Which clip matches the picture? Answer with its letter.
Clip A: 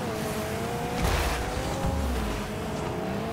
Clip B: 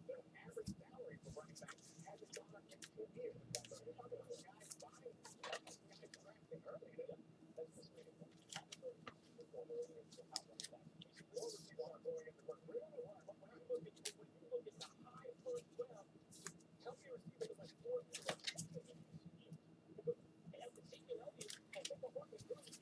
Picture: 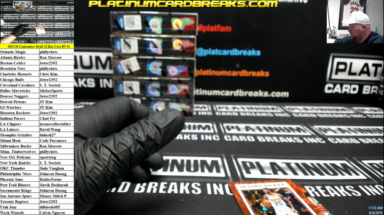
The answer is B